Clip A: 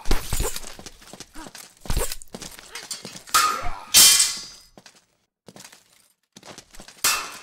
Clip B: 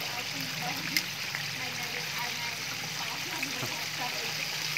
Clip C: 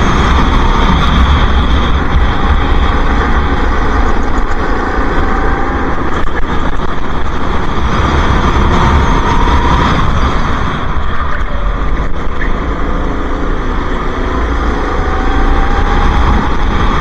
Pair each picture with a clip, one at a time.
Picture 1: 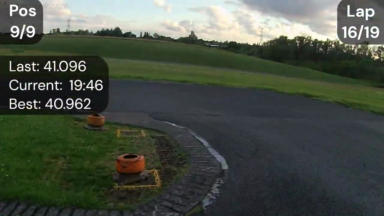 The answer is C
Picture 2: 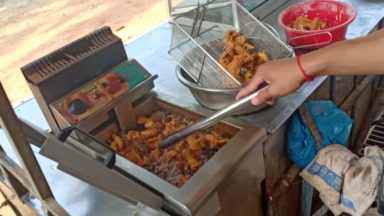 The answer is B